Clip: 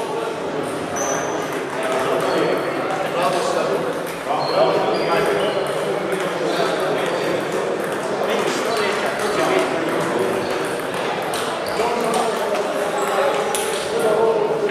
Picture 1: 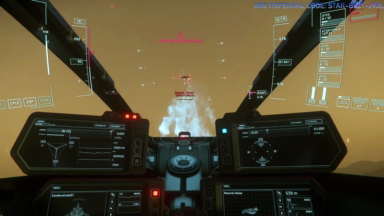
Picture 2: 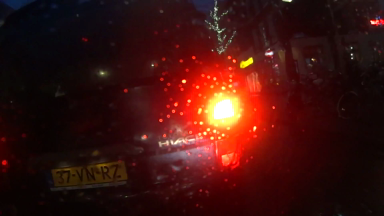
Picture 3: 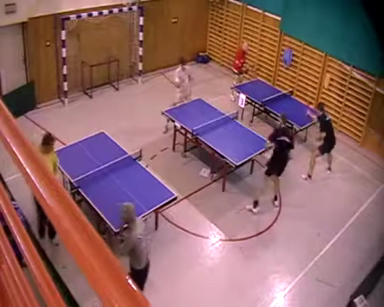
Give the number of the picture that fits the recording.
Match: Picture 3